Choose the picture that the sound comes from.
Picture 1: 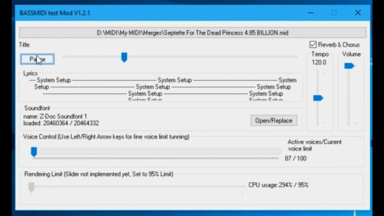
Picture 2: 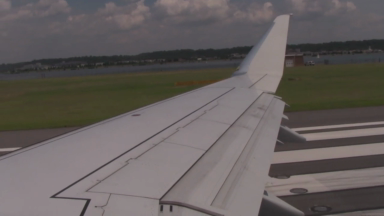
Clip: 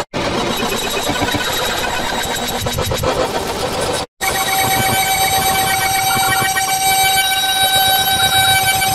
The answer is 1